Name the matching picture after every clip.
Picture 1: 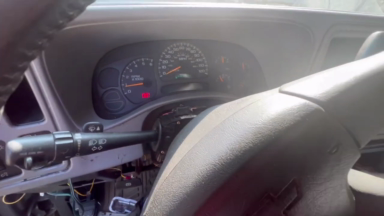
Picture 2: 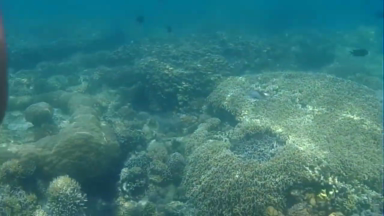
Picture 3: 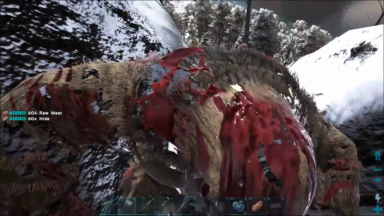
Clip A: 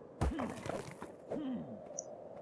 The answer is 3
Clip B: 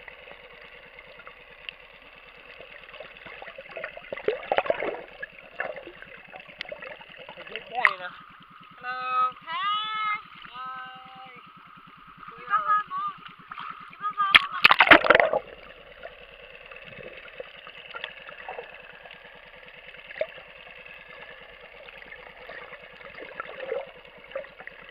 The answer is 2